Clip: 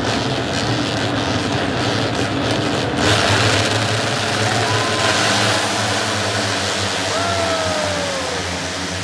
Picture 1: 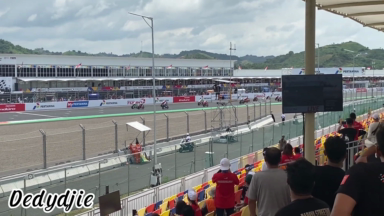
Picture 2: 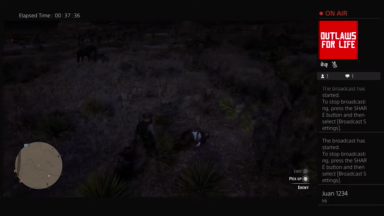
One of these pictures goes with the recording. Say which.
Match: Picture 1